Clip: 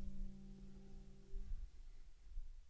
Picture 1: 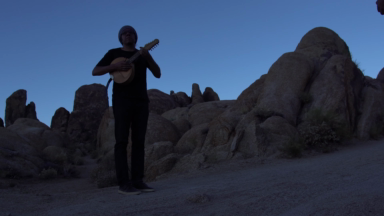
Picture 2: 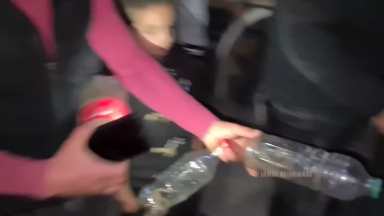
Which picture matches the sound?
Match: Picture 1